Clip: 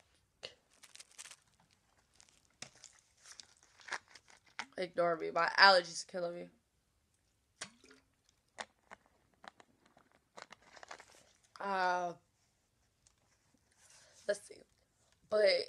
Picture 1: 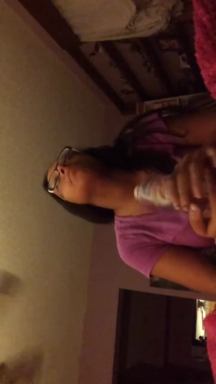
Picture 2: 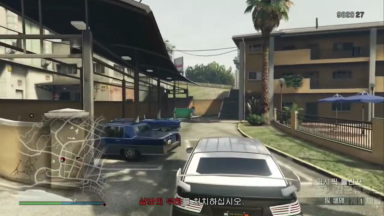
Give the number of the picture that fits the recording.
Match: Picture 1